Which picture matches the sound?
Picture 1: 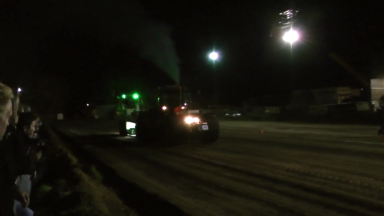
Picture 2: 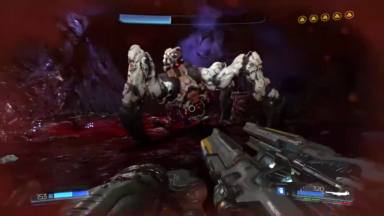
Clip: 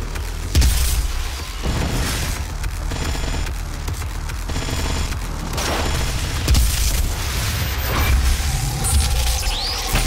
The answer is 2